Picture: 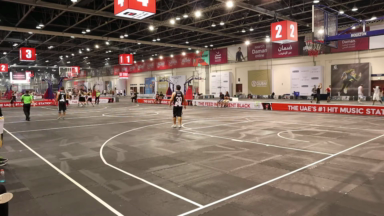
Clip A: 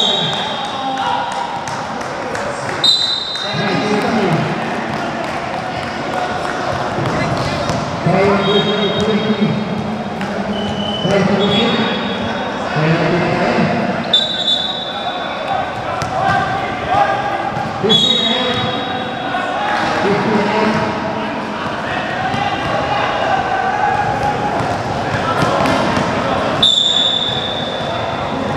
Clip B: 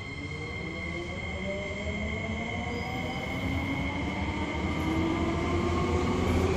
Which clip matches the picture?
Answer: A